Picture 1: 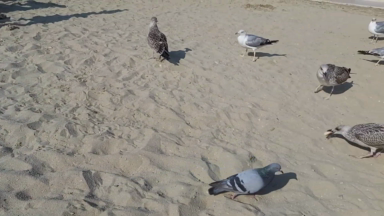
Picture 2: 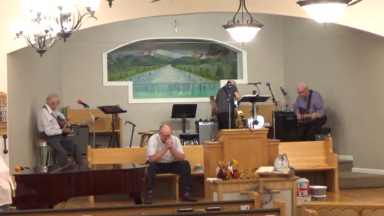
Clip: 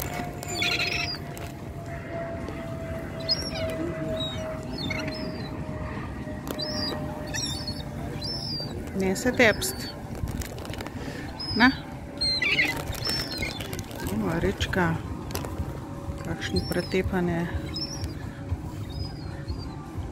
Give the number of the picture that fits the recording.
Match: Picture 1